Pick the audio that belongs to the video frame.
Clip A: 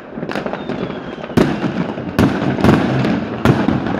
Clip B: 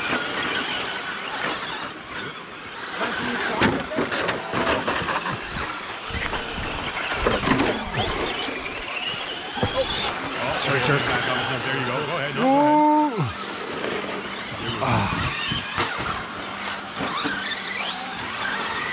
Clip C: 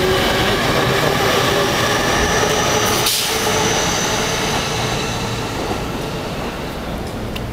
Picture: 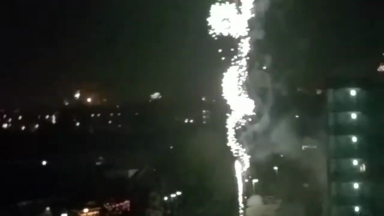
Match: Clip A